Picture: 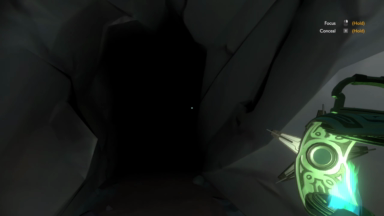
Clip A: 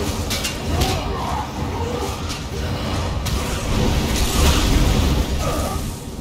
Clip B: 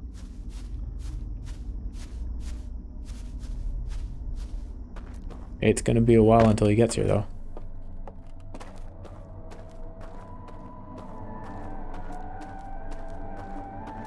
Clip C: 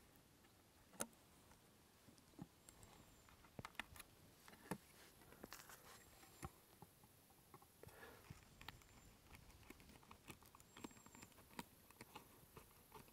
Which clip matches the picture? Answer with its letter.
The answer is B